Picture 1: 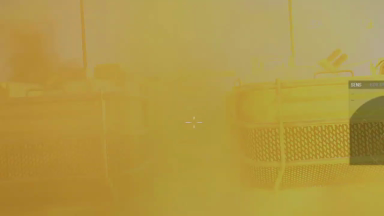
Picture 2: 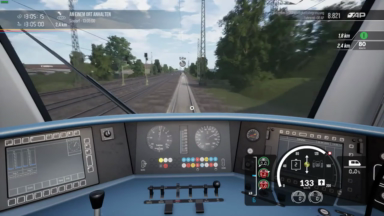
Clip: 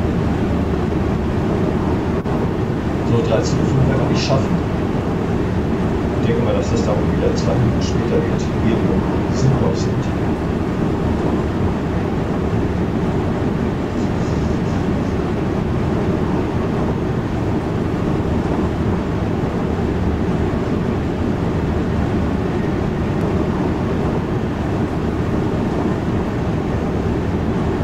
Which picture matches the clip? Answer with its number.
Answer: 2